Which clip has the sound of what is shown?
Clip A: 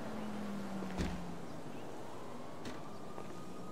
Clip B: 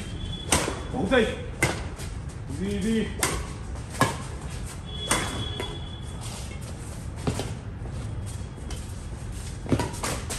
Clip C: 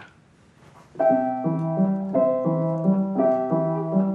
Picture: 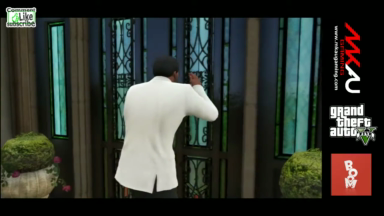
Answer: A